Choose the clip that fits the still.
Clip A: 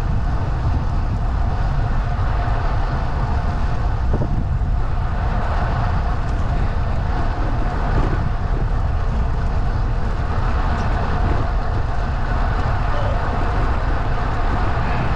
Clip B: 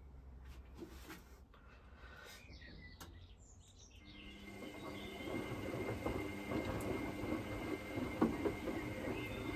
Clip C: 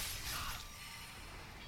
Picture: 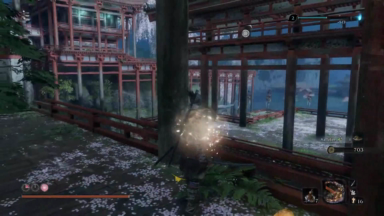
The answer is C